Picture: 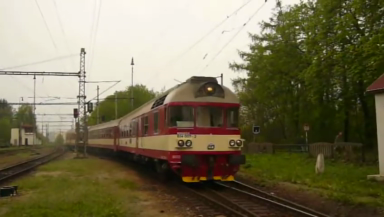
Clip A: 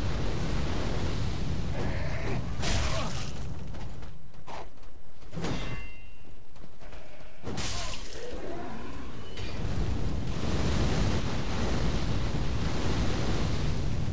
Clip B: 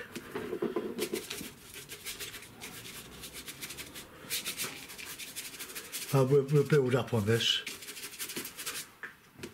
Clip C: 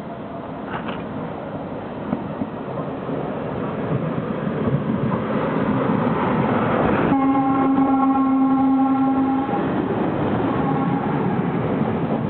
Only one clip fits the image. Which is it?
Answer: C